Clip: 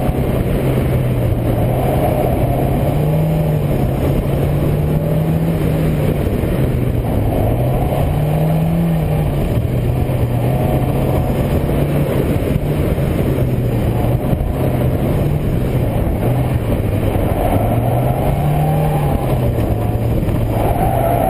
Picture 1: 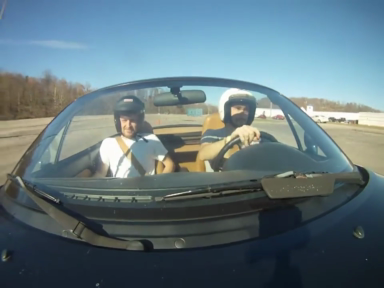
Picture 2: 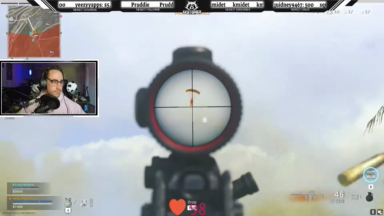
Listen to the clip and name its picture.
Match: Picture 1